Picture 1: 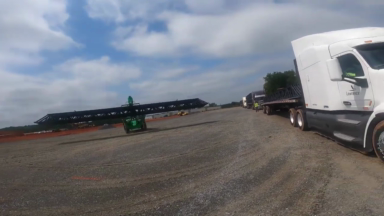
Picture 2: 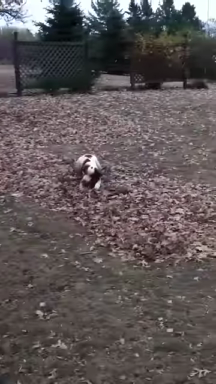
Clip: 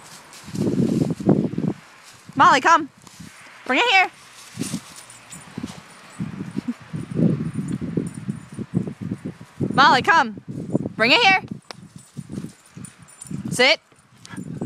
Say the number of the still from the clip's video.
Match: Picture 2